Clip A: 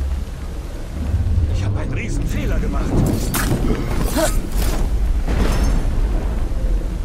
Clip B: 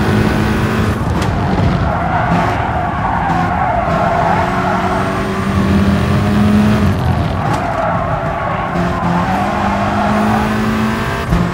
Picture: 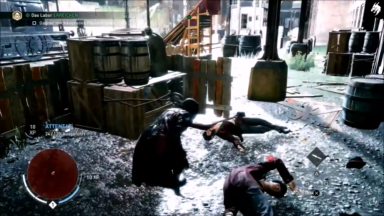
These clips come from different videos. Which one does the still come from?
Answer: A